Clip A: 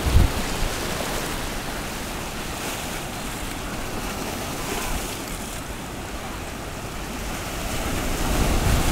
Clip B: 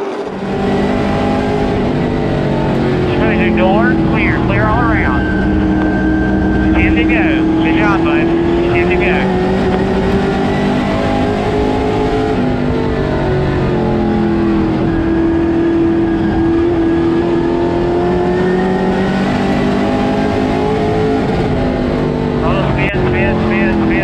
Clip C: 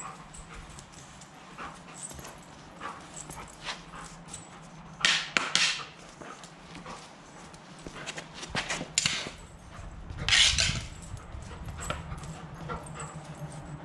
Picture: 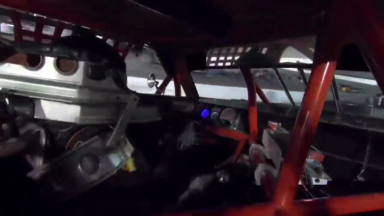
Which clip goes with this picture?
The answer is B